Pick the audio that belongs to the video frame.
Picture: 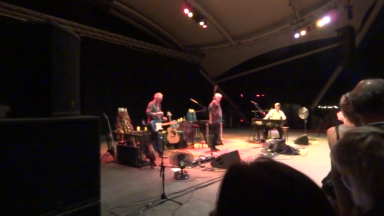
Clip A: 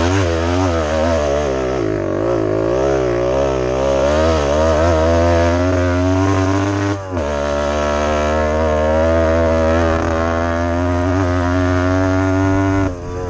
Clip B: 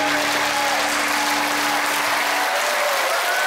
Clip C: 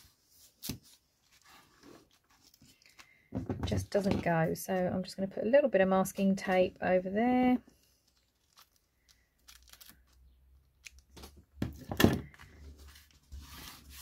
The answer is B